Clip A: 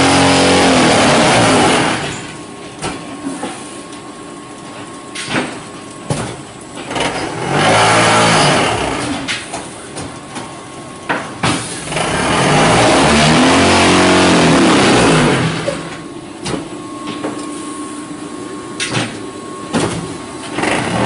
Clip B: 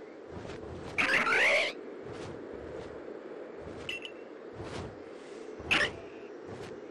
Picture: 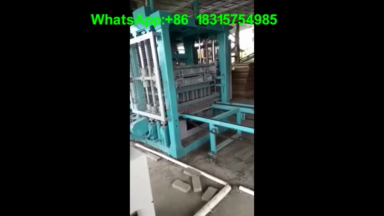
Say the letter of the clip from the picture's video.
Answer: A